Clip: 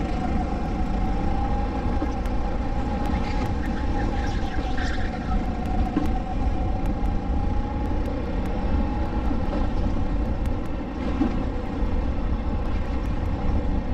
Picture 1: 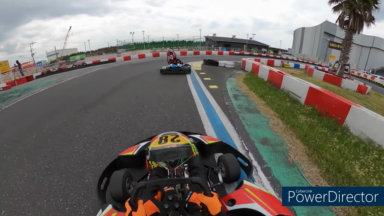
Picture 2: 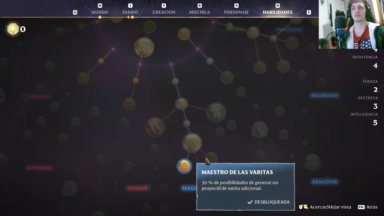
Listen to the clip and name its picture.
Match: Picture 1